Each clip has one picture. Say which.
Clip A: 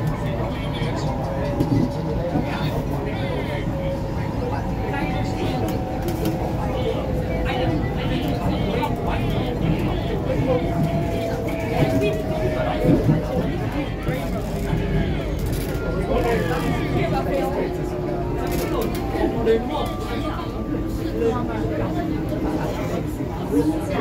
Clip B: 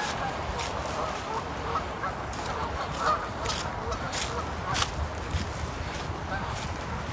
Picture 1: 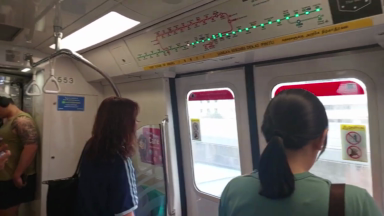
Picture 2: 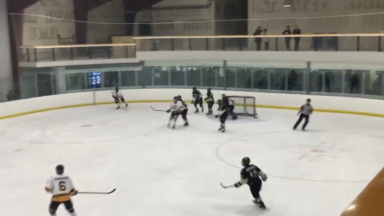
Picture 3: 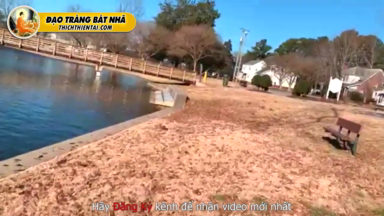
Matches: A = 1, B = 3